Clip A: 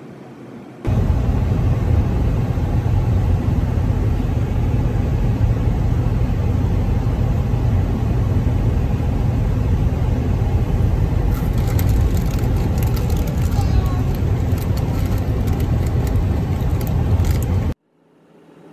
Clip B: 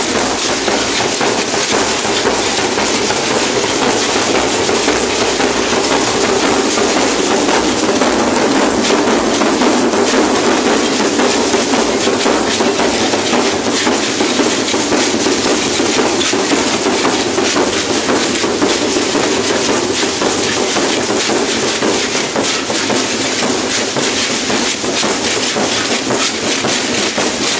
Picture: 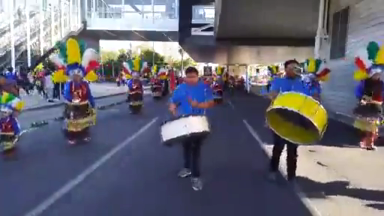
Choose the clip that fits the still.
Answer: B